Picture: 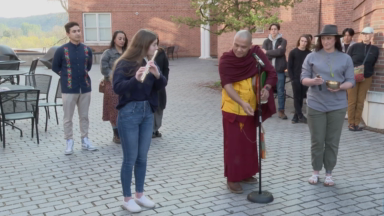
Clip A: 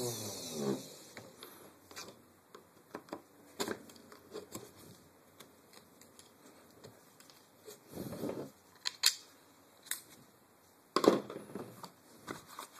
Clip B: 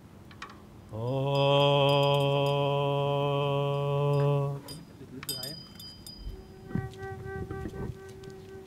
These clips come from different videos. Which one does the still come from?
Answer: B